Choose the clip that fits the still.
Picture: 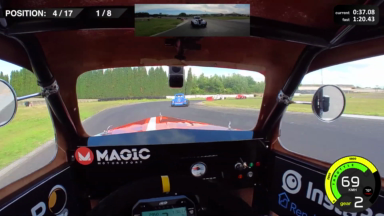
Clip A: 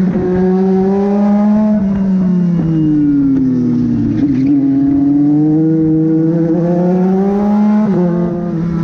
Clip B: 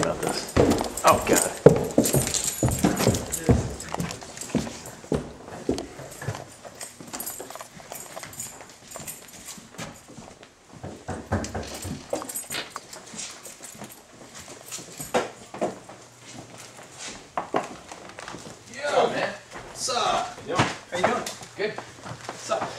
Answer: A